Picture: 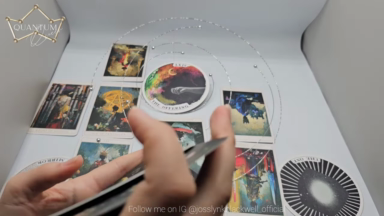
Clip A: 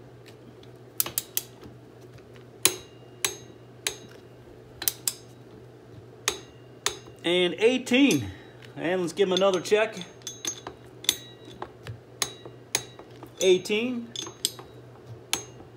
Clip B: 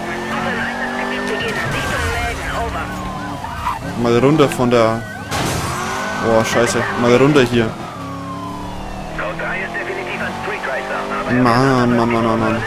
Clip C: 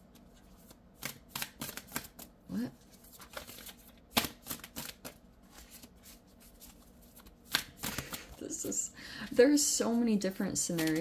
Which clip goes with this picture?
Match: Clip C